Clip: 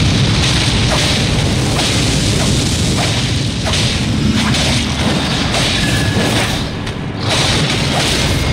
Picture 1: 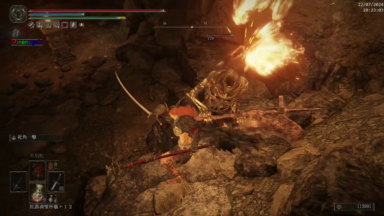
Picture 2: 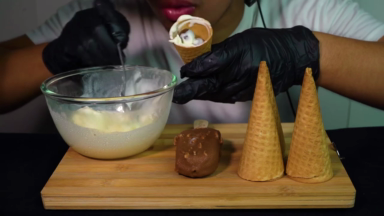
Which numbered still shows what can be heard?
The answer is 1